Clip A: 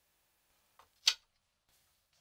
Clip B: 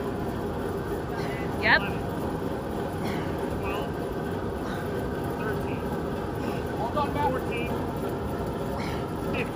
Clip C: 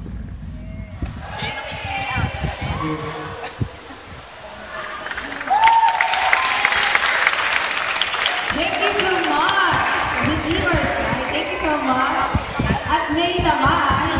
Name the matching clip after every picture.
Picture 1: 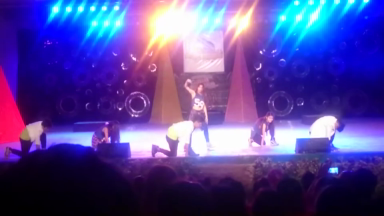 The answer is C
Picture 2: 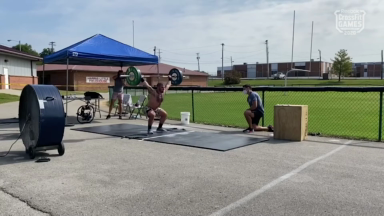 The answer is B